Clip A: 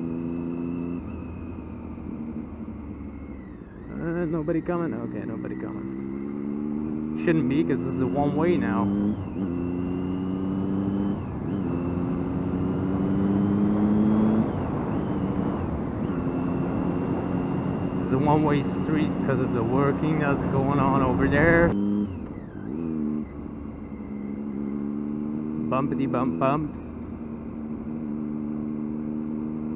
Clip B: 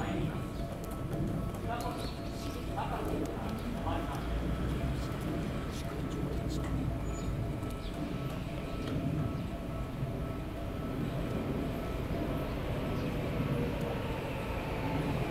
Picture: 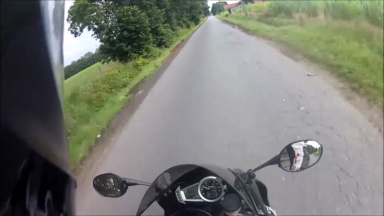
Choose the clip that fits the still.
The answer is A